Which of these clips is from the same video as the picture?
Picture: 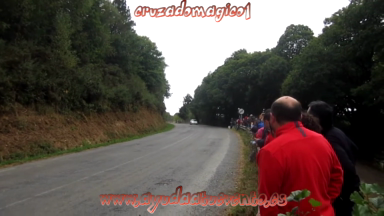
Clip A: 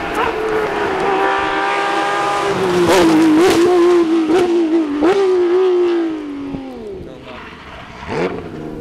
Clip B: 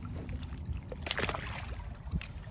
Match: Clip A